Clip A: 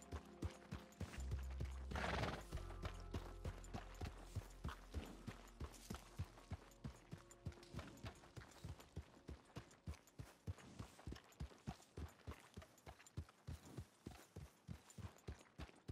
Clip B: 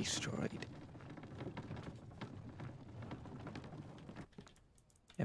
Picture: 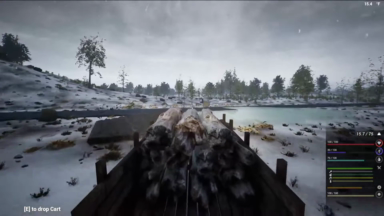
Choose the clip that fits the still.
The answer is B